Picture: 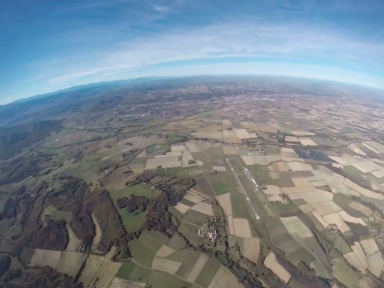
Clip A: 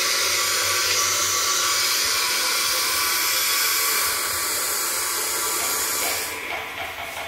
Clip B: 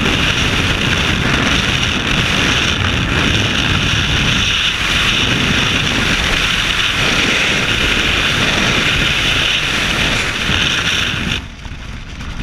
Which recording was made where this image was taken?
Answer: B